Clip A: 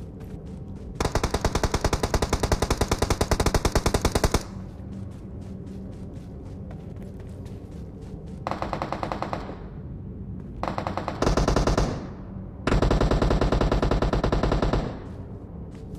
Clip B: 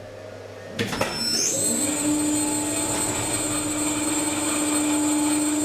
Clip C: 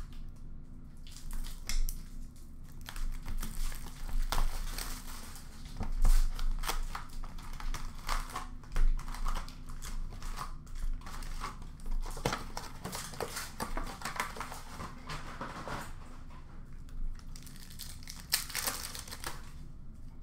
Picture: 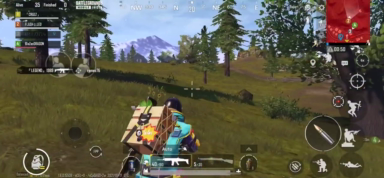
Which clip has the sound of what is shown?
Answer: A